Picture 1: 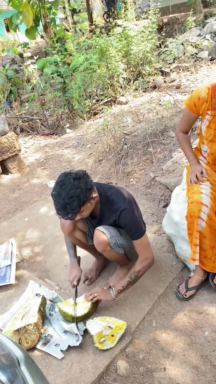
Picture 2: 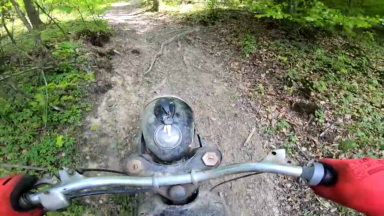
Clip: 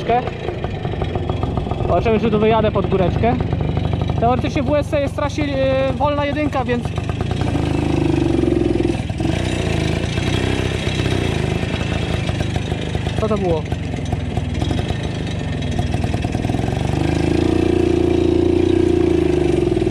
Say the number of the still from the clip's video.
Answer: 2